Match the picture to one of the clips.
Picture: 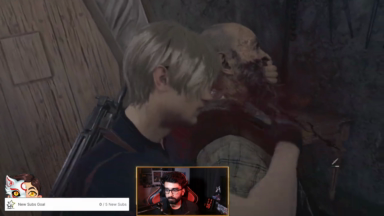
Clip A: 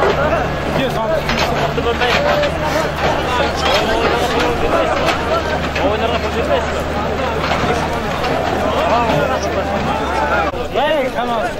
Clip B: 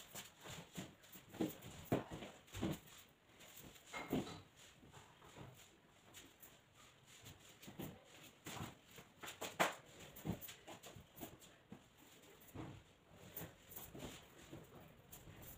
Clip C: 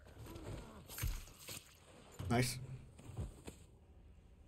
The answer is C